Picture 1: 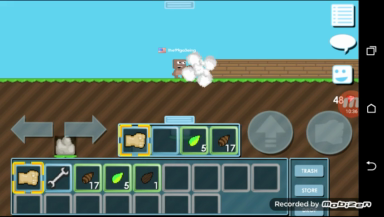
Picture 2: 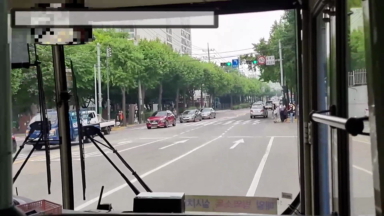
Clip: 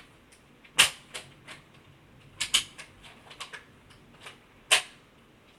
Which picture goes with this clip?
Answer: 1